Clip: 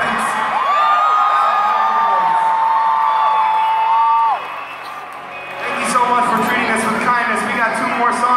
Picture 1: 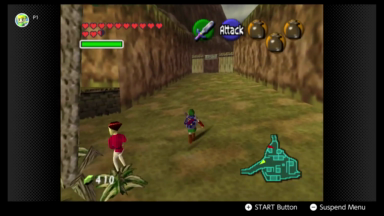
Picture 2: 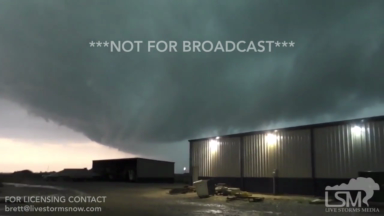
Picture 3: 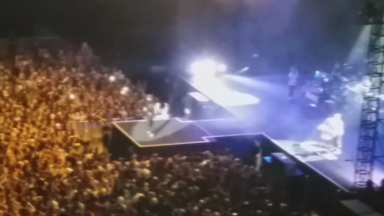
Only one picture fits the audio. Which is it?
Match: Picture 3